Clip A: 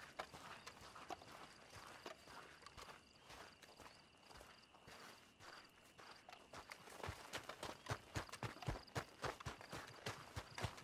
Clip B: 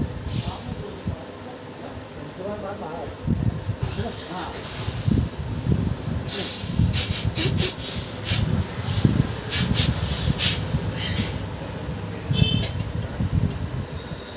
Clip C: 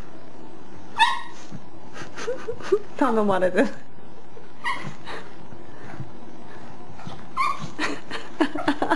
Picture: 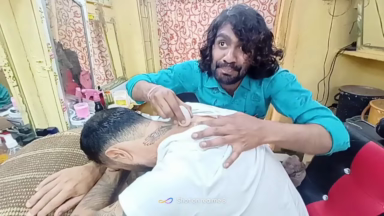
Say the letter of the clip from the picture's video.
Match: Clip B